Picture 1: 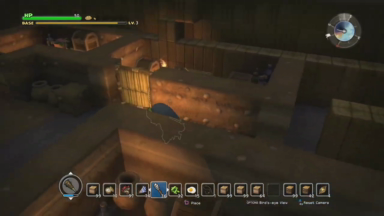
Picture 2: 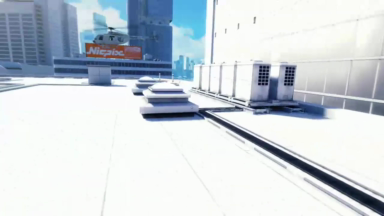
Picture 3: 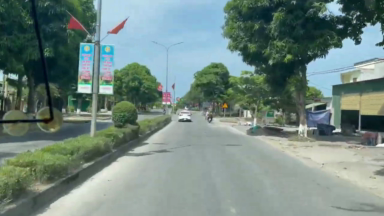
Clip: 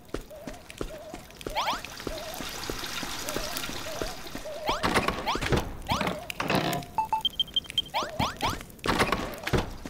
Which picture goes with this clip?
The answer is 1